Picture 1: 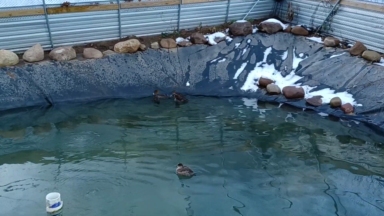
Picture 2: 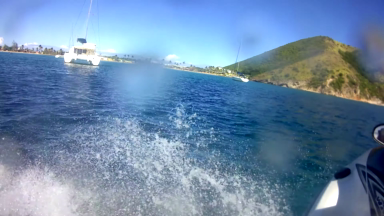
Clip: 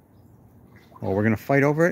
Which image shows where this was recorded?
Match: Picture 1